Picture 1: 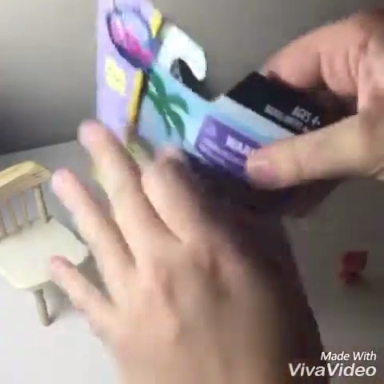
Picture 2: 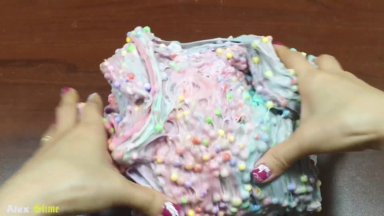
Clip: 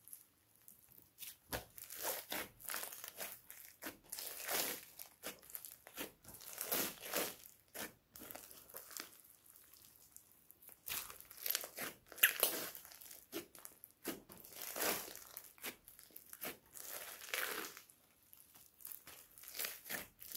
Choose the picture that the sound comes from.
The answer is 2